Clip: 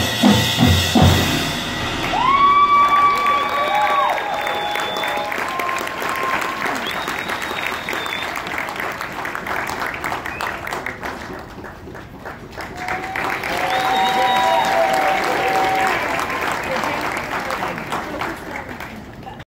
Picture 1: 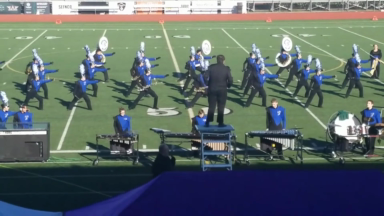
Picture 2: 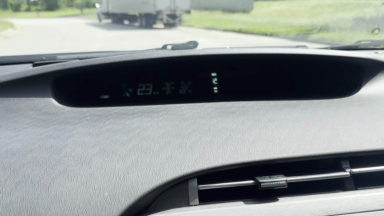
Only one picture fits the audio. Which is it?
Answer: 1